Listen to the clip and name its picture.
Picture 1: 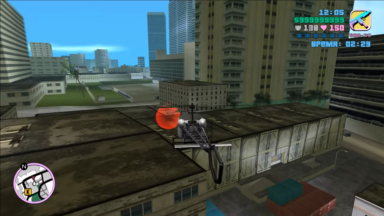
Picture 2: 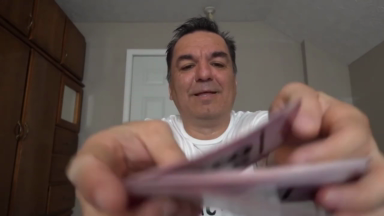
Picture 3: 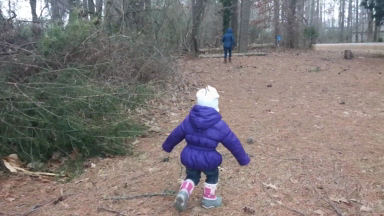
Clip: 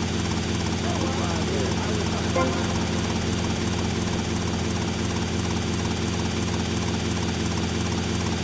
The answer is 1